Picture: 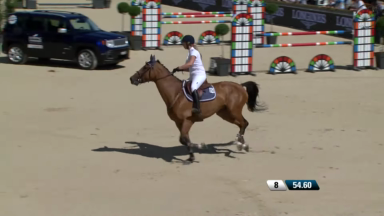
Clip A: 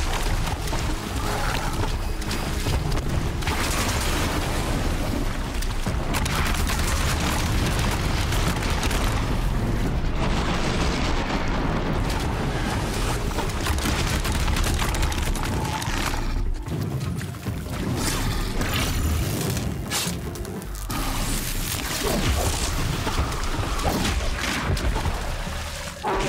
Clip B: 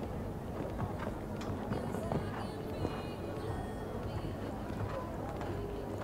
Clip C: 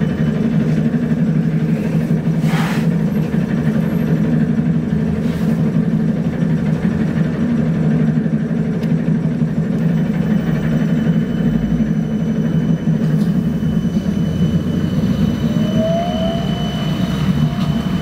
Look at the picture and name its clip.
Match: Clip B